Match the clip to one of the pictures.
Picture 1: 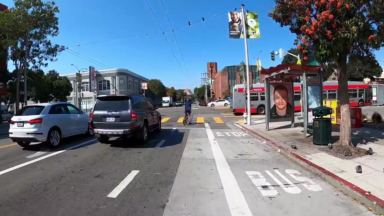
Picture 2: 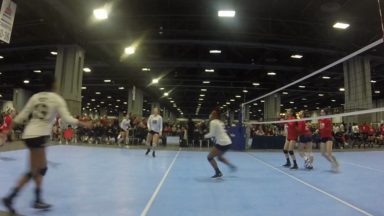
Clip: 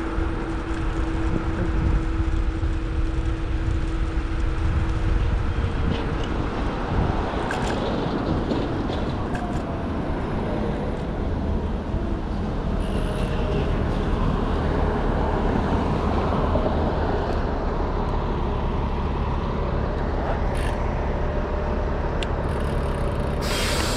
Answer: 1